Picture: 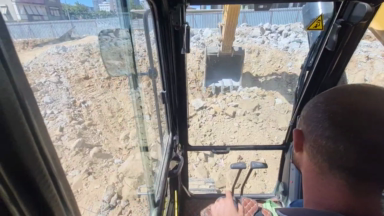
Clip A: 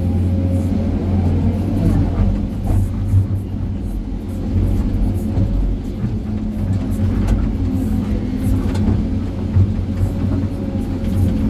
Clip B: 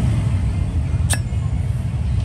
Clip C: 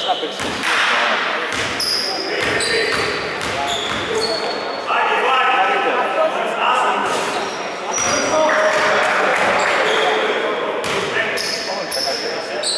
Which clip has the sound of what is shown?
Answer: A